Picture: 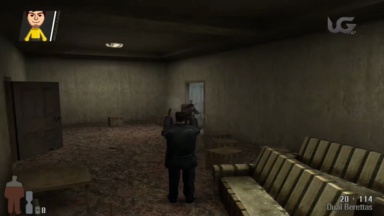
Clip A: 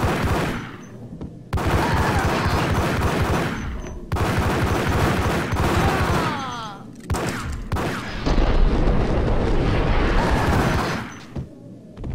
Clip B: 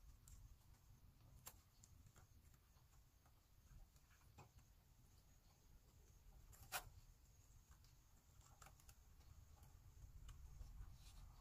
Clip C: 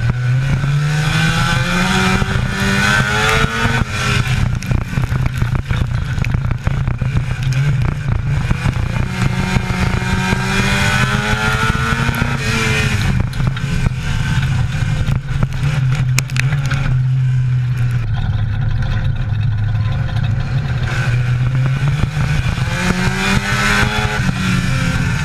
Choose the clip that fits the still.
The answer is A